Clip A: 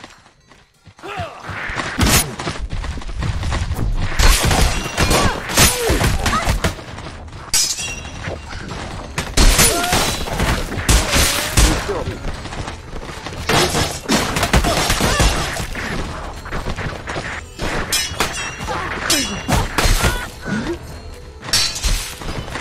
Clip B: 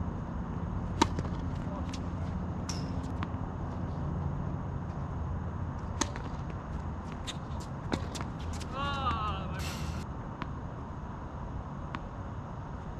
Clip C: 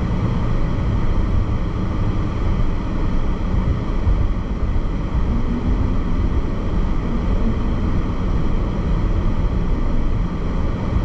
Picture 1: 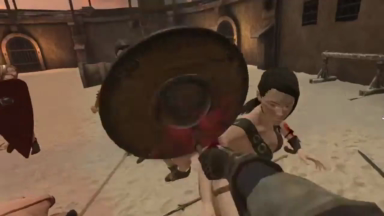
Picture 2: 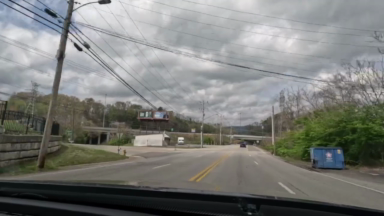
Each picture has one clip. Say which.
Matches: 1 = A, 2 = C